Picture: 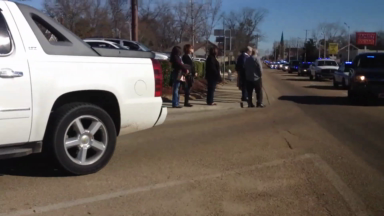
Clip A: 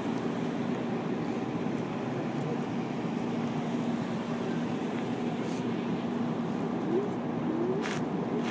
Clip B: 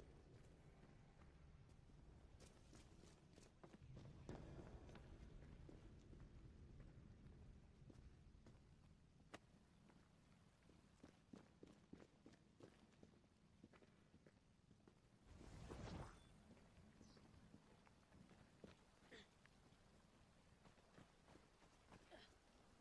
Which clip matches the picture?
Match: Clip A